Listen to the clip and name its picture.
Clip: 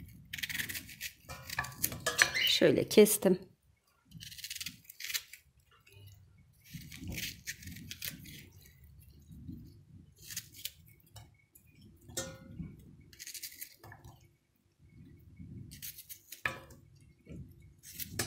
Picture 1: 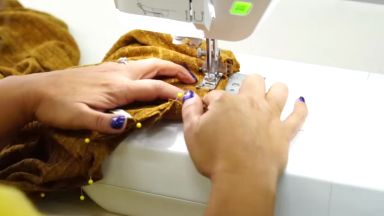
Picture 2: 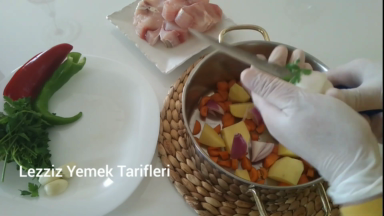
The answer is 2